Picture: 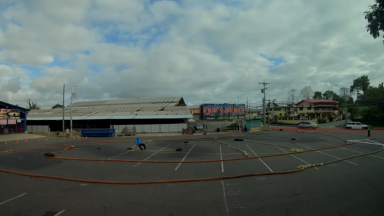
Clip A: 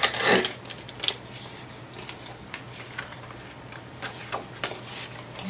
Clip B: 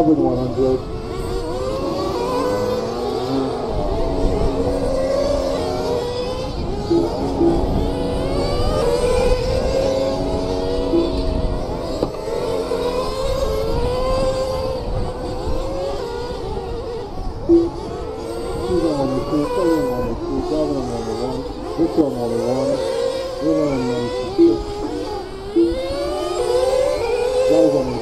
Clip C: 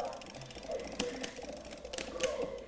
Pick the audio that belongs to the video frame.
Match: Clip B